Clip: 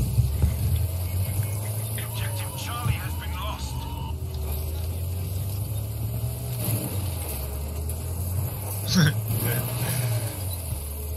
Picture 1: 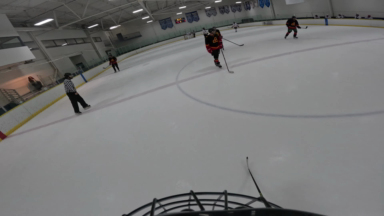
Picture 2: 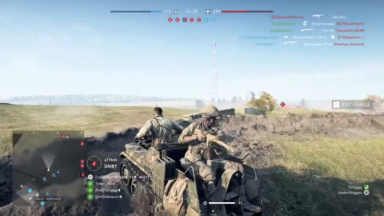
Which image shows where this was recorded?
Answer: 2